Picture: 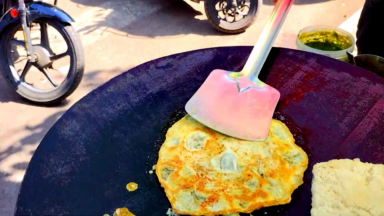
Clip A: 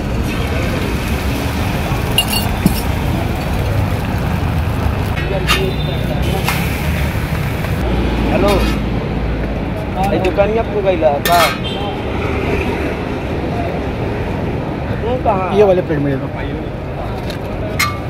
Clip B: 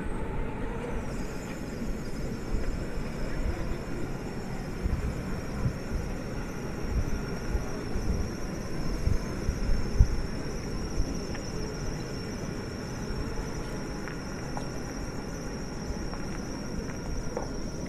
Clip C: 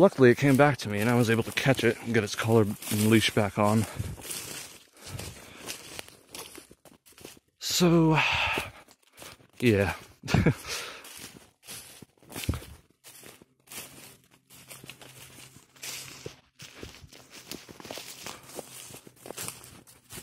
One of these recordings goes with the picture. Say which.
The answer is A